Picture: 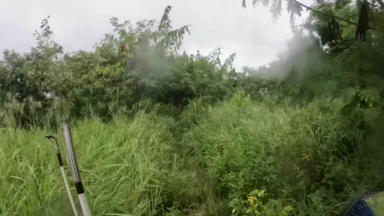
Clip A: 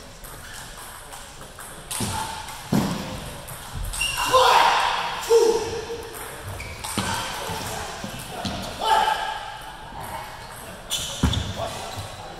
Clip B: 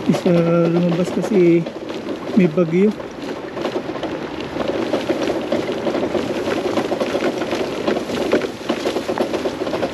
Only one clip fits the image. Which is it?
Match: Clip B